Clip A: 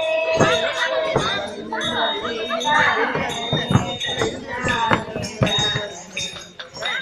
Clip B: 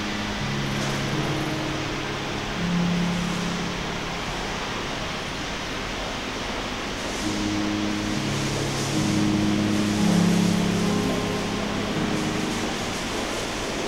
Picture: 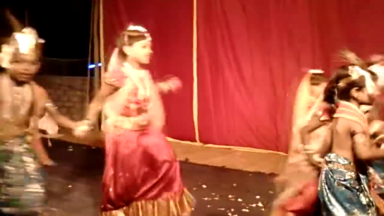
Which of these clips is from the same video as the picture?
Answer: A